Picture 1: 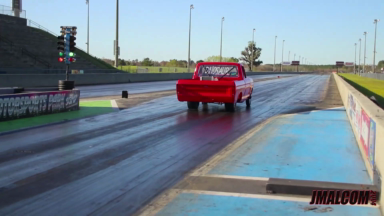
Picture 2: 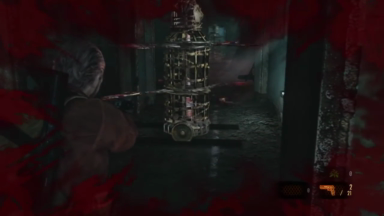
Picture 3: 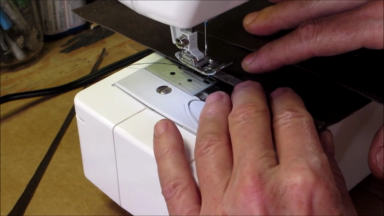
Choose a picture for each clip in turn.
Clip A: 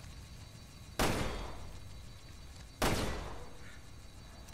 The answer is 2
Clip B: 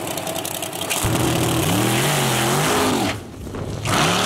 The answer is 1